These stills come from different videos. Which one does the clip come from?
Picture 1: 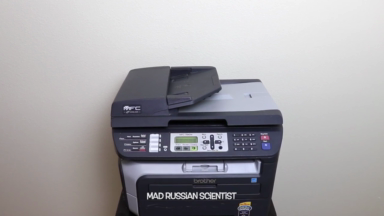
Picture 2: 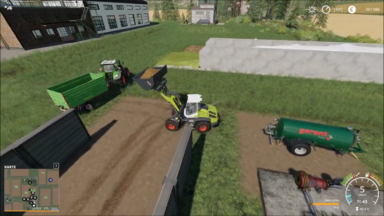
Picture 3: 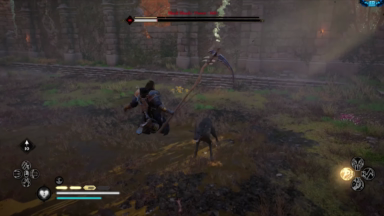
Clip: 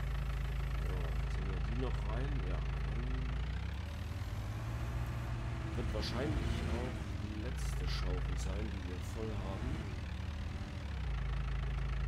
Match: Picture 2